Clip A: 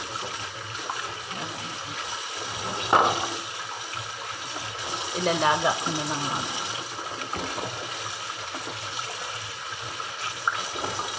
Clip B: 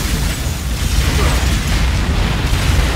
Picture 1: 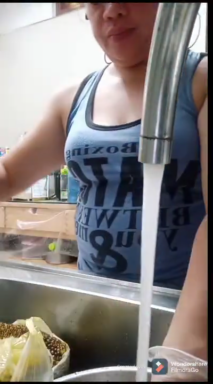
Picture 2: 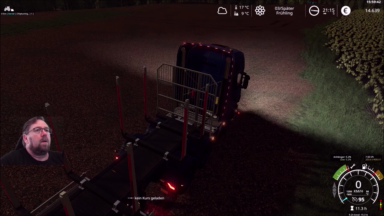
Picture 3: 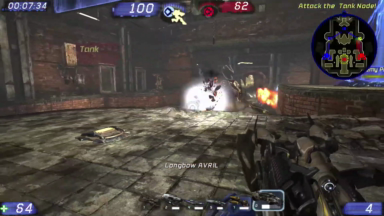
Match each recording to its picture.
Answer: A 1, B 3